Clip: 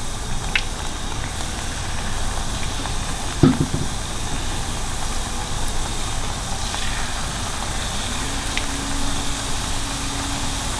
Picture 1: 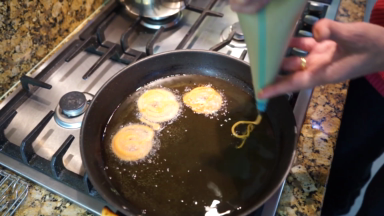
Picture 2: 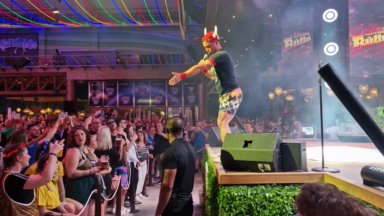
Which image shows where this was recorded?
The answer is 1